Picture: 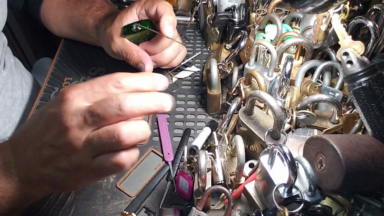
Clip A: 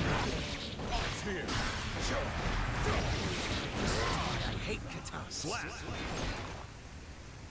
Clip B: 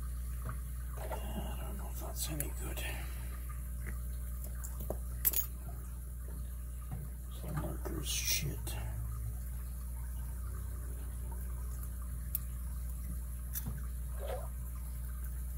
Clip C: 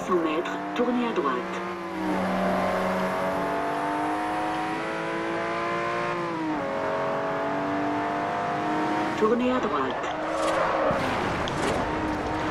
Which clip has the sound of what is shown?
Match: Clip B